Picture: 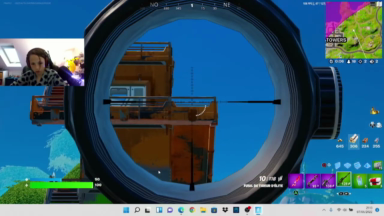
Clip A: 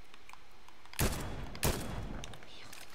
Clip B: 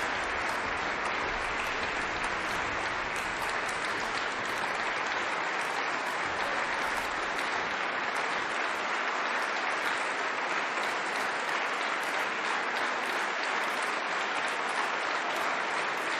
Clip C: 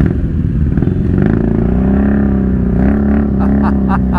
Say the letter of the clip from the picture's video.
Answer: A